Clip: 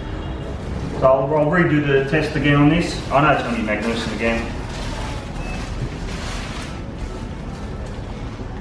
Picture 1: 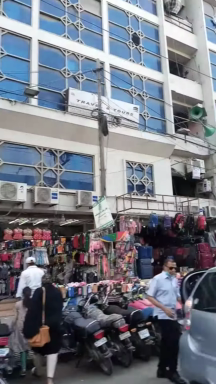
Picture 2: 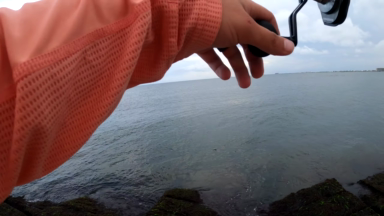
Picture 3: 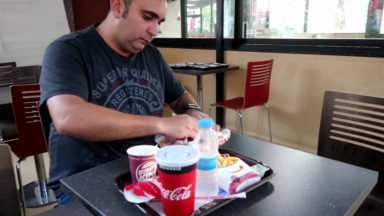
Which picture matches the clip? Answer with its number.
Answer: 3